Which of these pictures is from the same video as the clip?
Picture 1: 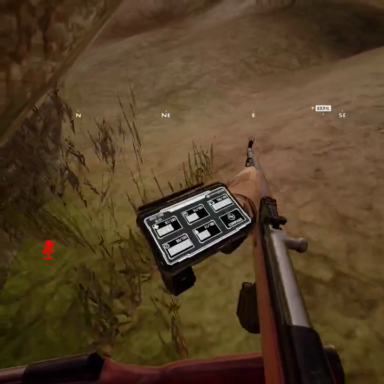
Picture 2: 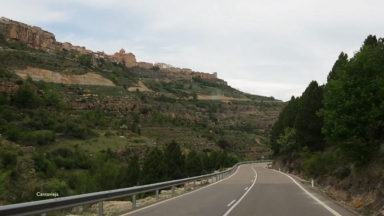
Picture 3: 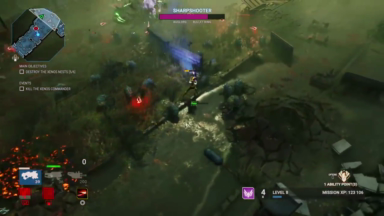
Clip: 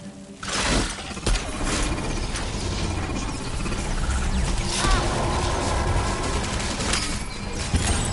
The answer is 3